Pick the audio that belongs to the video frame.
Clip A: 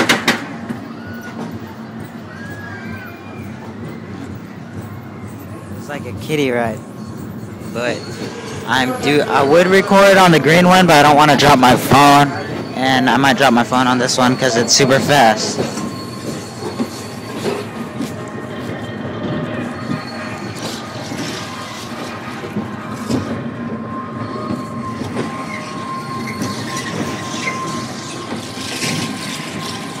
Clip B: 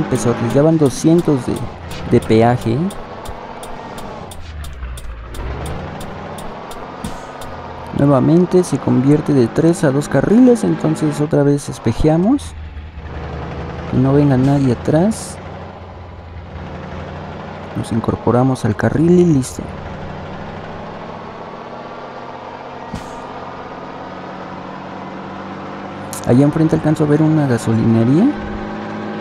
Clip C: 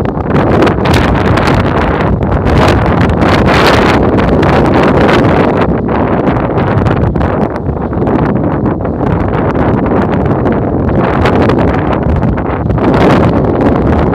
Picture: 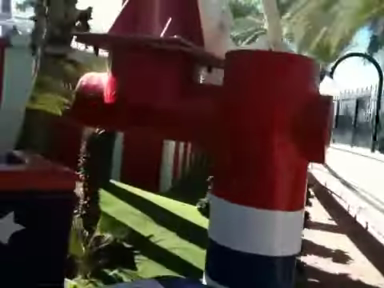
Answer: A